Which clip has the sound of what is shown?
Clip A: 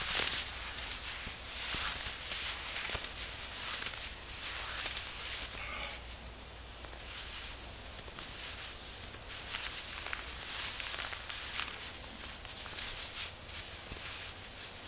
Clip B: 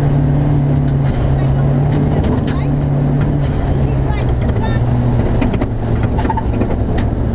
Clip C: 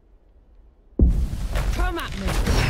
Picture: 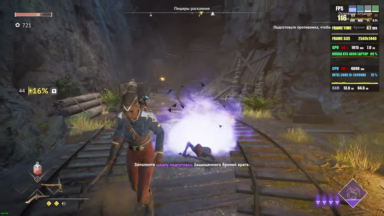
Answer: C